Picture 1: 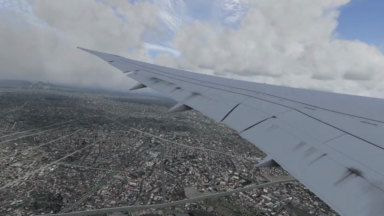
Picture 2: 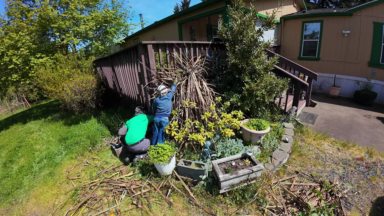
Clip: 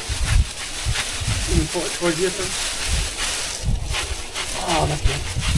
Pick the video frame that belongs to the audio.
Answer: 2